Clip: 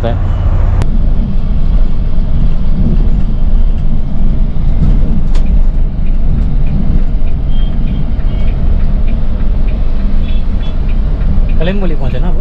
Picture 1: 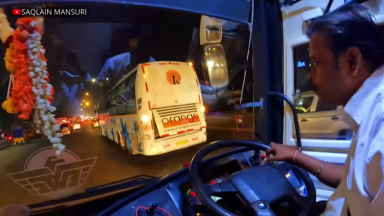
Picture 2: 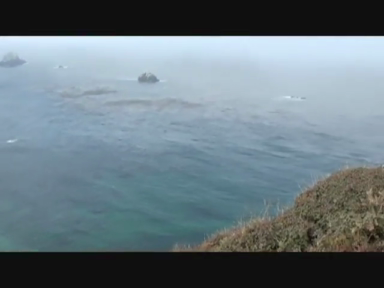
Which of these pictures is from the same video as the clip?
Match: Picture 1